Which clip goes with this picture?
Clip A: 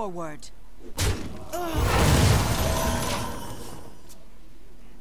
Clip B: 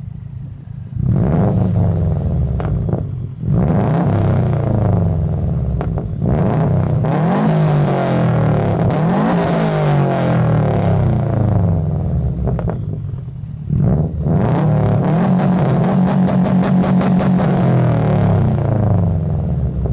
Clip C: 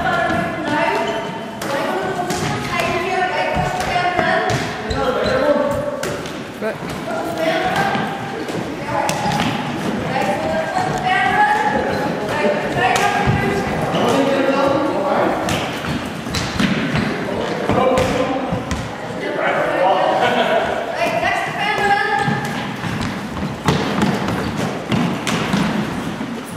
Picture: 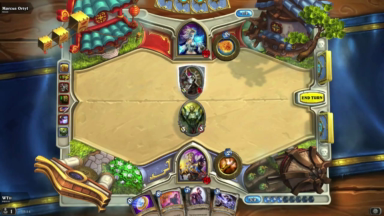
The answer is A